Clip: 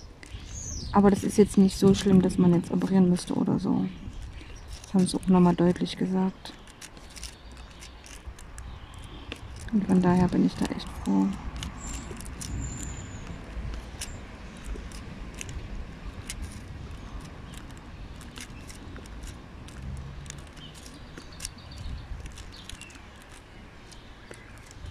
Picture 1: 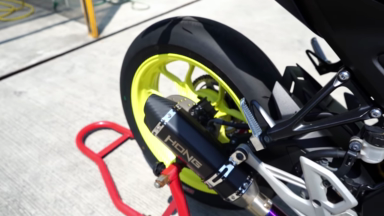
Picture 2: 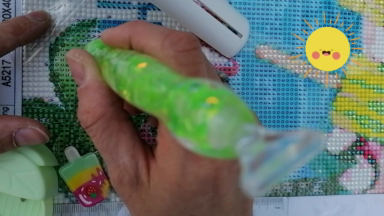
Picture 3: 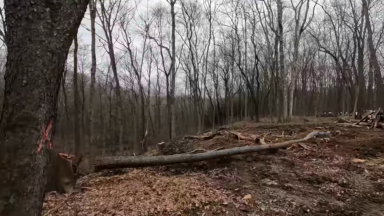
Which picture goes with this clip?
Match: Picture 2